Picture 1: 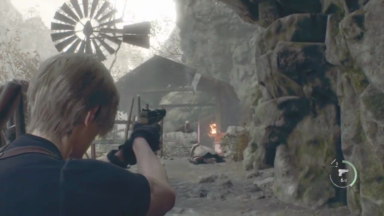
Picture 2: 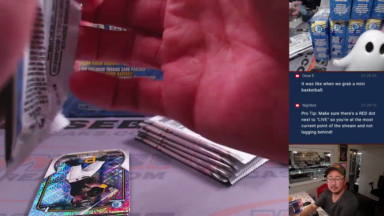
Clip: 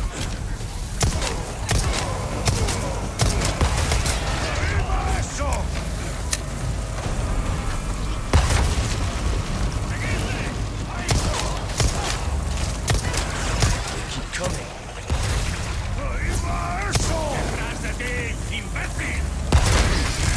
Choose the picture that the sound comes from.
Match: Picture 1